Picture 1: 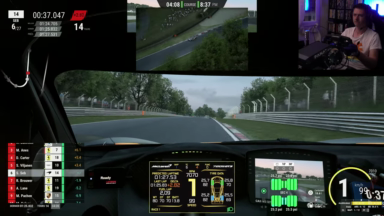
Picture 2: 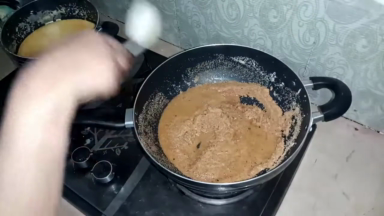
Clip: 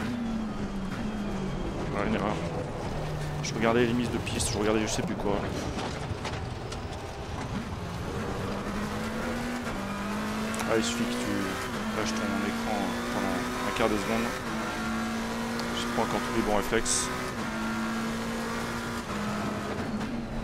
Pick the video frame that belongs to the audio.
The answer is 1